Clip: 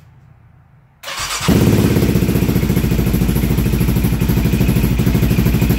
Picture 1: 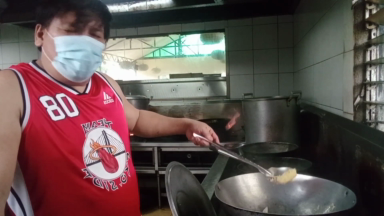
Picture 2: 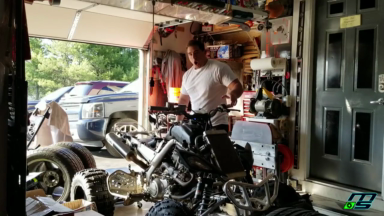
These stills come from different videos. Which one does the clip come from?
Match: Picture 2